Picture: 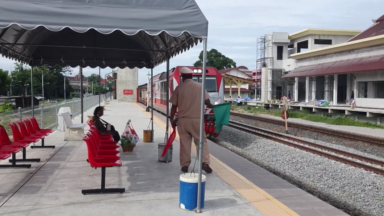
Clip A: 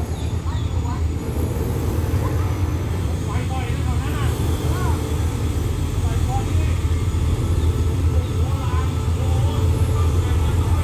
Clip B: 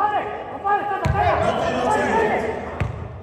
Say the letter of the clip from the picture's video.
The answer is A